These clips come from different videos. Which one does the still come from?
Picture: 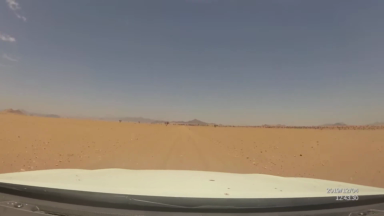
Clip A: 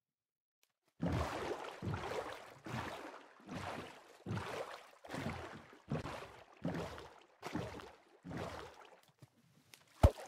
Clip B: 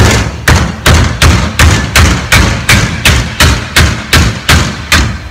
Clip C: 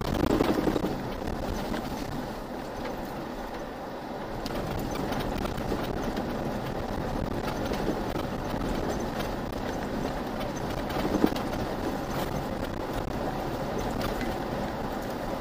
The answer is C